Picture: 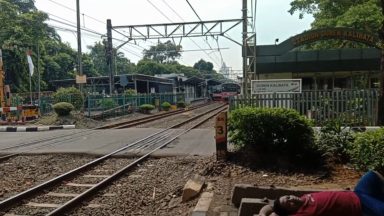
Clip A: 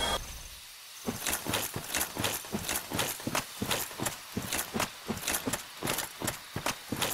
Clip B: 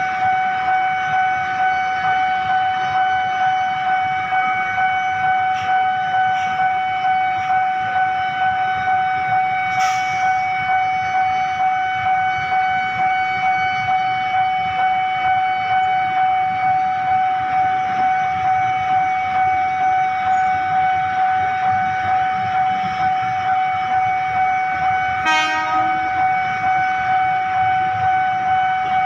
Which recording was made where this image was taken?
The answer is B